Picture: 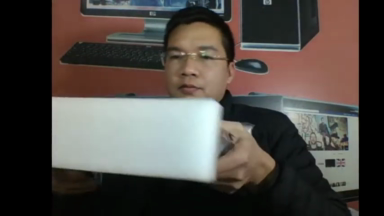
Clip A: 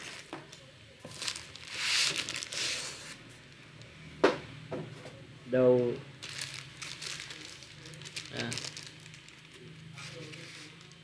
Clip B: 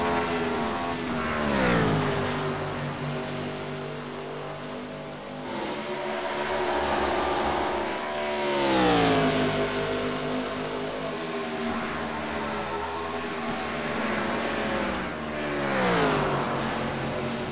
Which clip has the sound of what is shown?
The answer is A